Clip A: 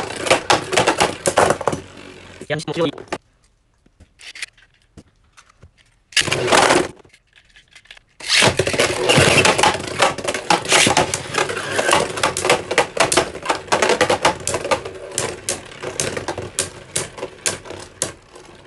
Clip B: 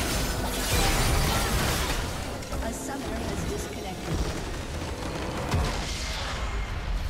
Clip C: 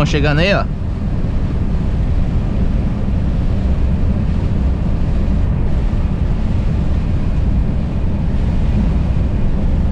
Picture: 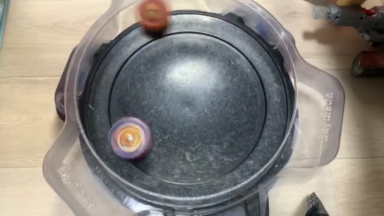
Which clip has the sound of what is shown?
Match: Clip A